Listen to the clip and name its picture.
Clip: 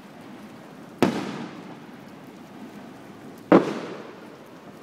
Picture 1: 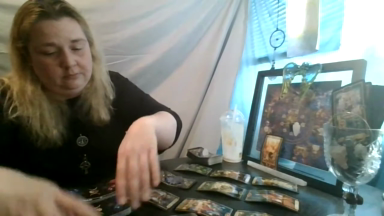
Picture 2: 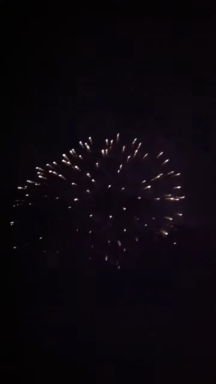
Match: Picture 2